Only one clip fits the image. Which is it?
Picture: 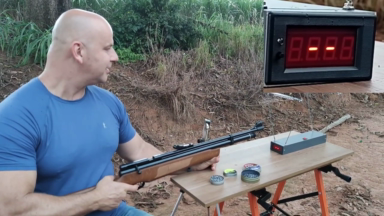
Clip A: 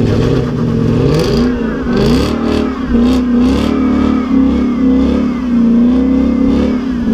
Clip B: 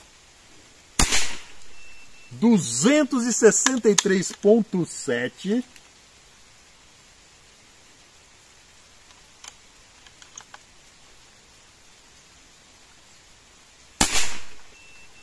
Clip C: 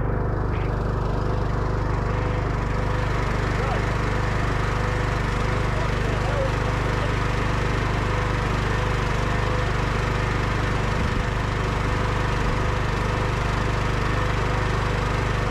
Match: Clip B